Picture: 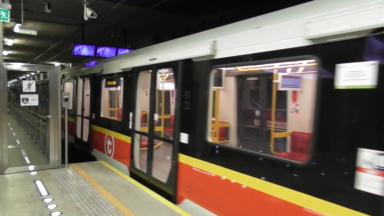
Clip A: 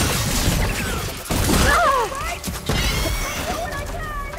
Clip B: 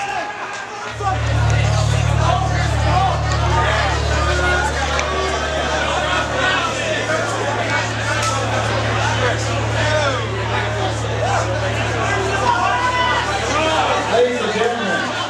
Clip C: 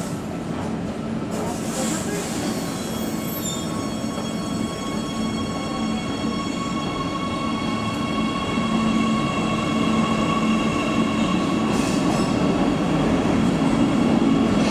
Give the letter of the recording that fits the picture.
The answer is C